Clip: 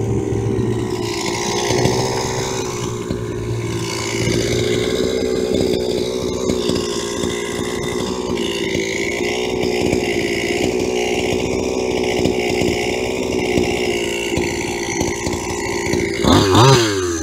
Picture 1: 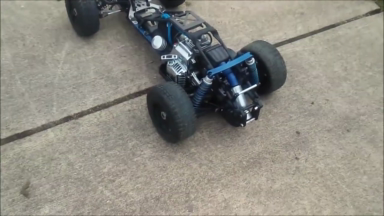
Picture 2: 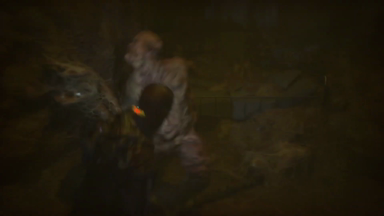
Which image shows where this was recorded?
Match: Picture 1